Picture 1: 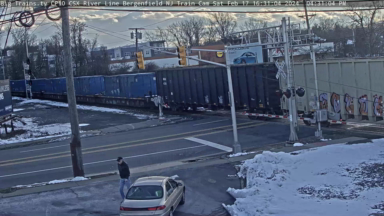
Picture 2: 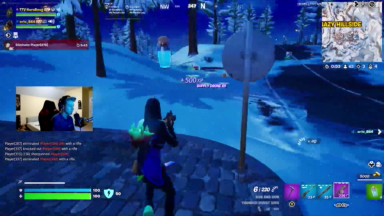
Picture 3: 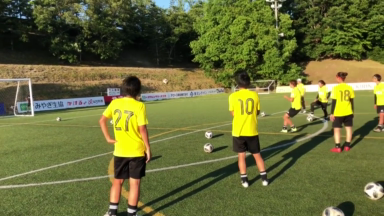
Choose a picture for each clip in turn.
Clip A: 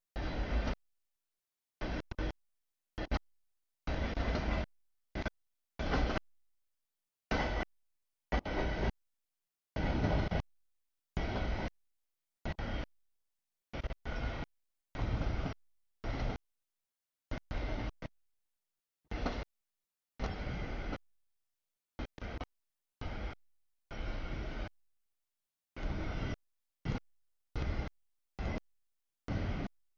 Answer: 1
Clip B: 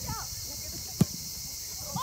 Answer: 3